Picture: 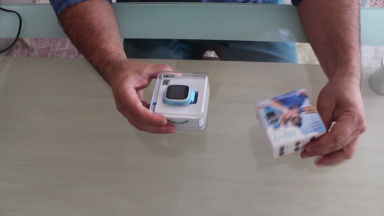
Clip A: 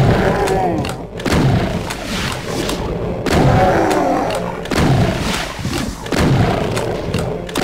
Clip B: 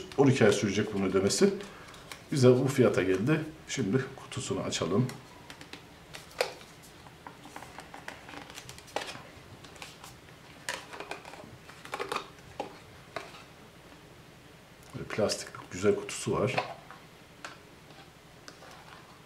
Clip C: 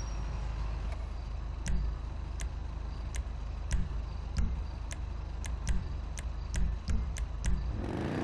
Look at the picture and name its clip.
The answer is B